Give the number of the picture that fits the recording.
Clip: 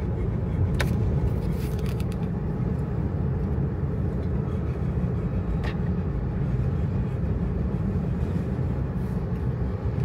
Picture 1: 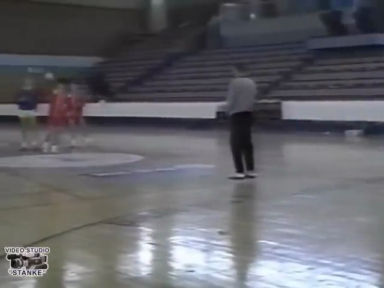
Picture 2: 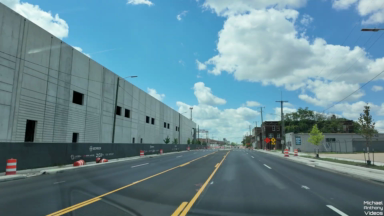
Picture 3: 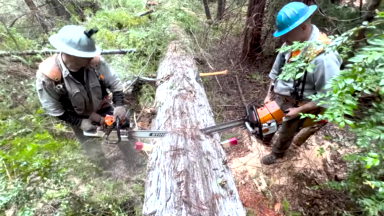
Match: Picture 2